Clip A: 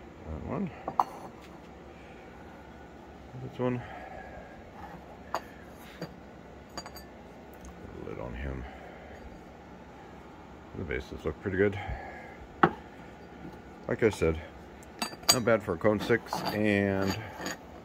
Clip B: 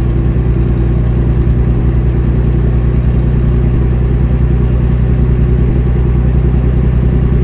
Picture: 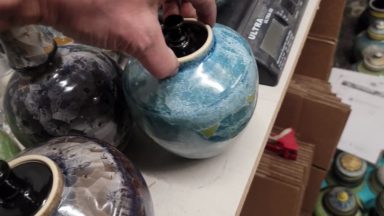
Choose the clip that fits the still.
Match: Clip A